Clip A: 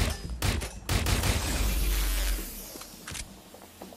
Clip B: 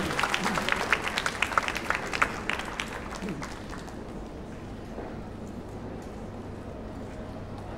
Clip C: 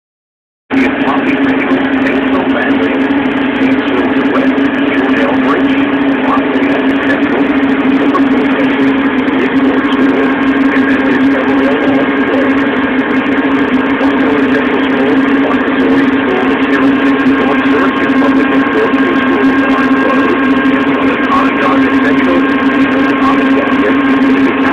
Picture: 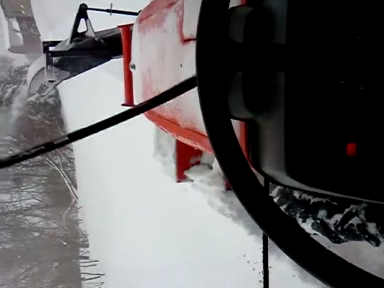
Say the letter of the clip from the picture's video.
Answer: C